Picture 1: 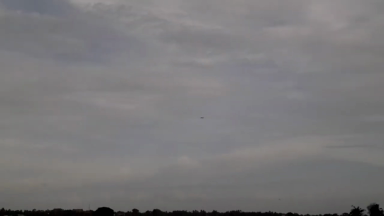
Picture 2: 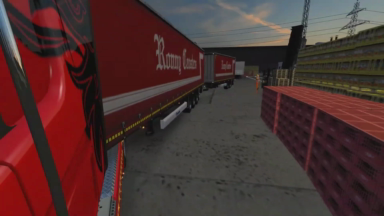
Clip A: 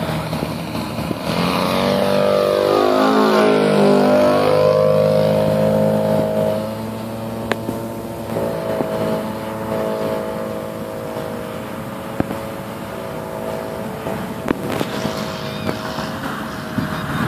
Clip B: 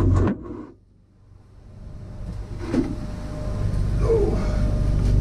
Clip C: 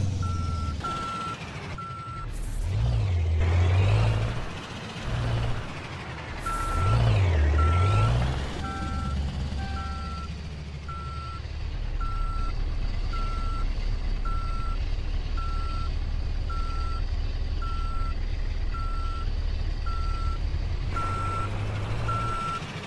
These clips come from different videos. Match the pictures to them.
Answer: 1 A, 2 C